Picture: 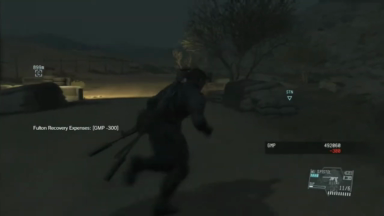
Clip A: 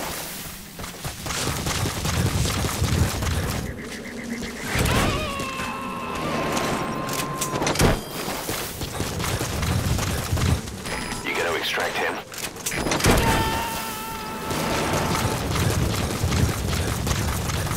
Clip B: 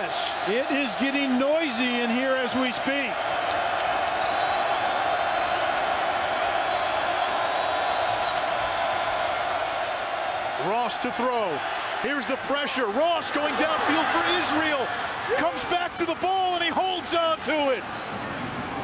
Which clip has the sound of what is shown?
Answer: A